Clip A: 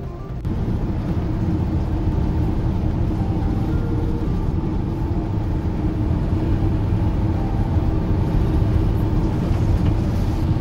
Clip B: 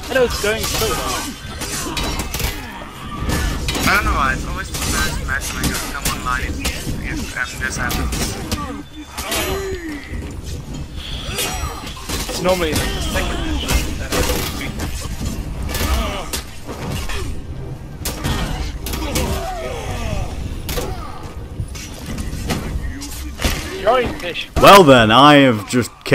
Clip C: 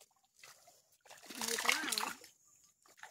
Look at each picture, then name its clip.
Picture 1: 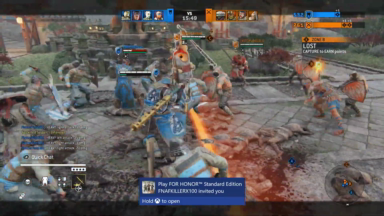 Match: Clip B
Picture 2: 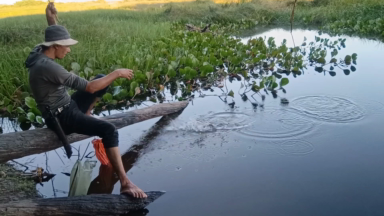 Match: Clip C